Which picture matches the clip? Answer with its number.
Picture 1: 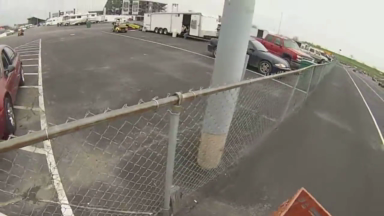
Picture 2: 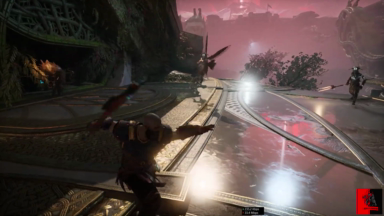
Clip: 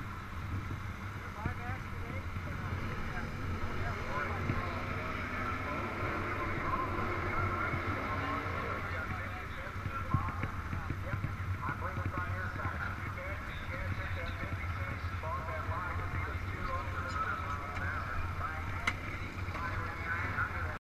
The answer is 1